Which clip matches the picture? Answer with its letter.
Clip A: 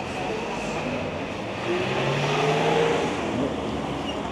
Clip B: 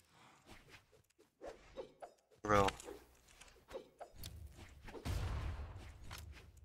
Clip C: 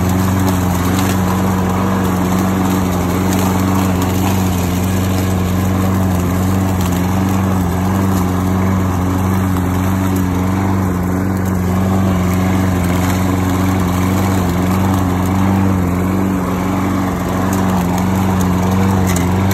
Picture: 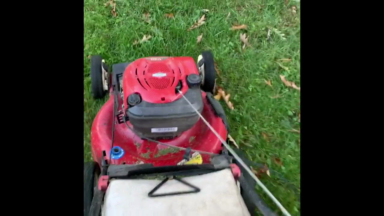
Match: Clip C